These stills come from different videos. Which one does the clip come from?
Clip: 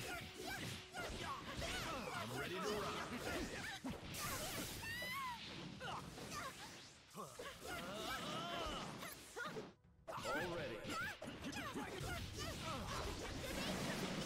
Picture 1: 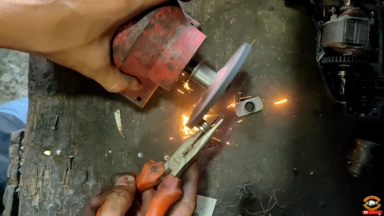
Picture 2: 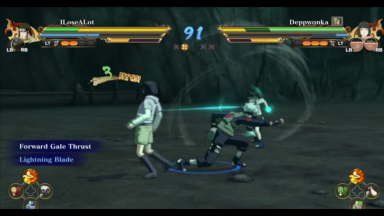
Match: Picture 2